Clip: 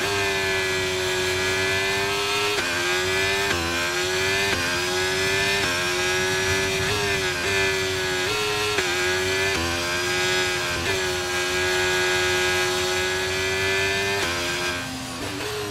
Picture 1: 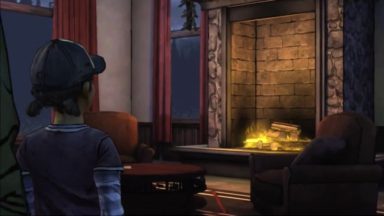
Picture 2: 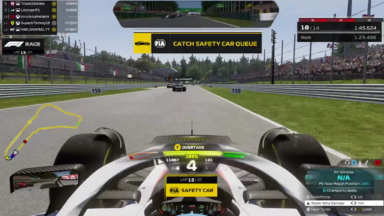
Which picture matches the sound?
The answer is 2